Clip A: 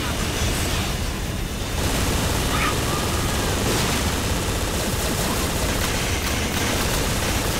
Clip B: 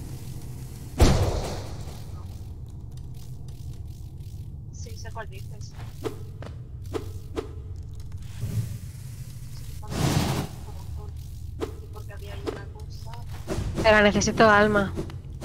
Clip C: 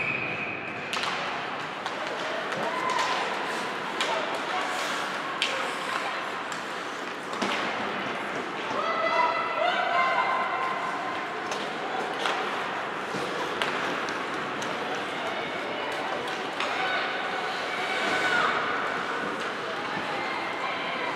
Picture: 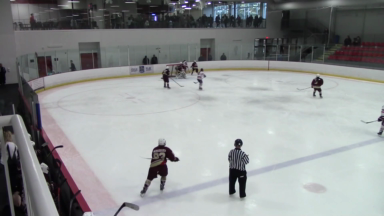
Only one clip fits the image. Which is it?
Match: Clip C